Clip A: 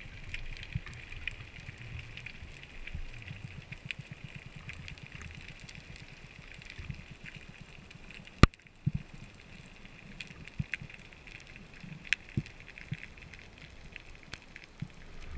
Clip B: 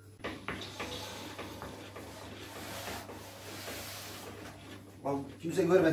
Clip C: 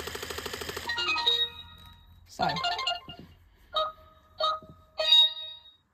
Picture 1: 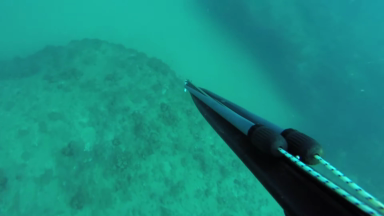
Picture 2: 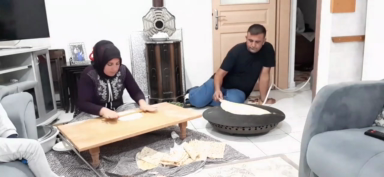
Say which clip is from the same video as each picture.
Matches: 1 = A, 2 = B